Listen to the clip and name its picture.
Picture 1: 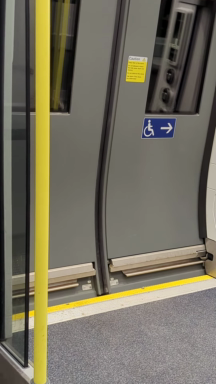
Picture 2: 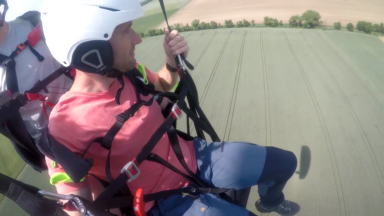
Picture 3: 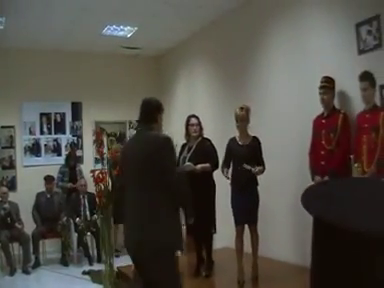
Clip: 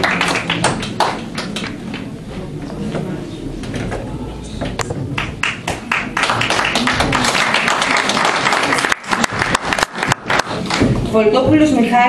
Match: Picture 3